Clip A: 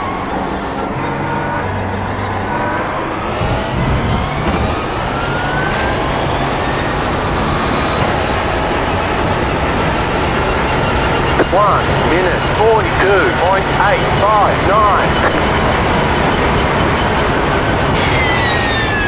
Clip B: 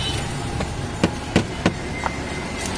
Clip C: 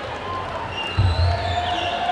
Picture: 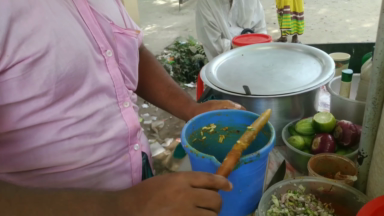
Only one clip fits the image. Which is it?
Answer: B